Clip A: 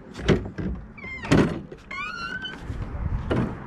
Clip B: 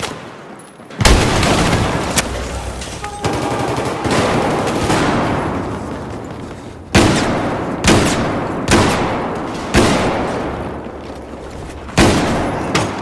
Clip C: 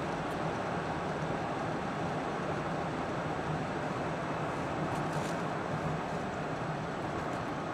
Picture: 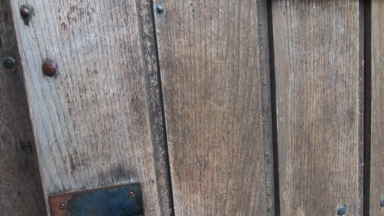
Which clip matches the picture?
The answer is A